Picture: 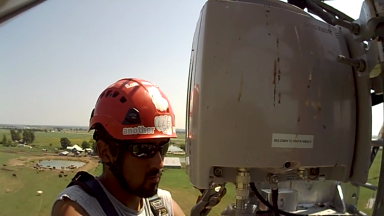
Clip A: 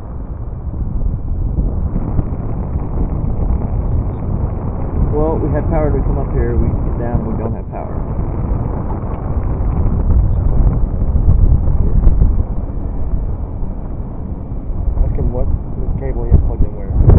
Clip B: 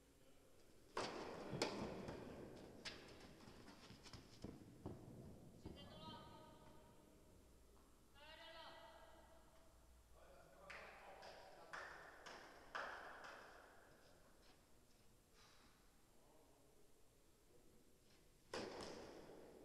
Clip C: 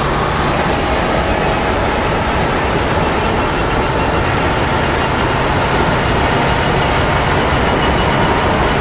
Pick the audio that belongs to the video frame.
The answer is A